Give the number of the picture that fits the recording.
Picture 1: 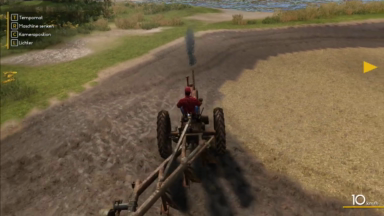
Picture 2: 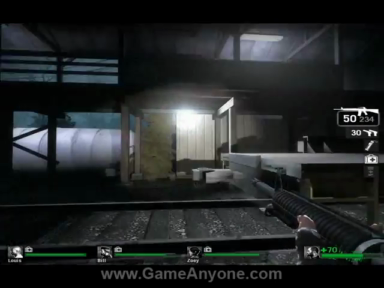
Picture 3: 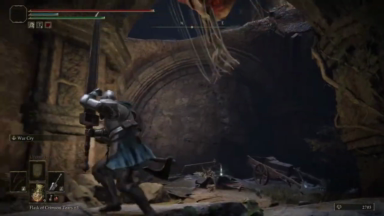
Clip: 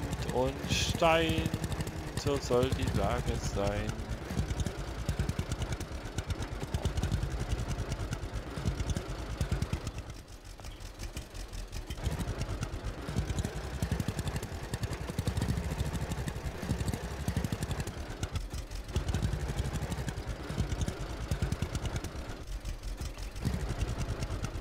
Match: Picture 1